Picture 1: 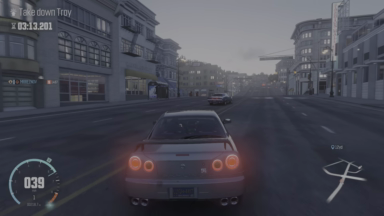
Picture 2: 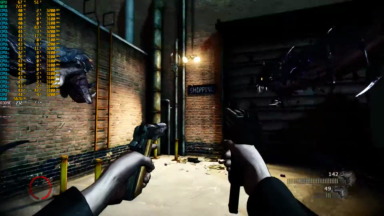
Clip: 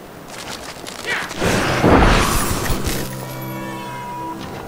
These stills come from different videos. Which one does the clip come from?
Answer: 2